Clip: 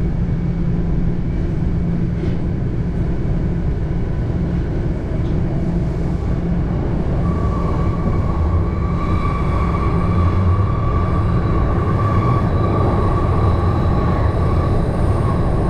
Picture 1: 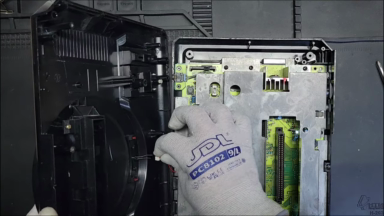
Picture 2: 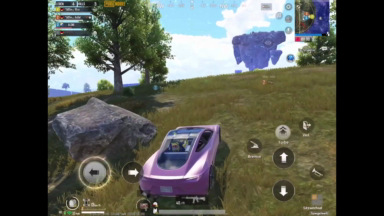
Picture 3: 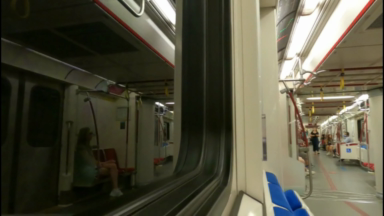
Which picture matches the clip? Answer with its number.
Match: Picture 3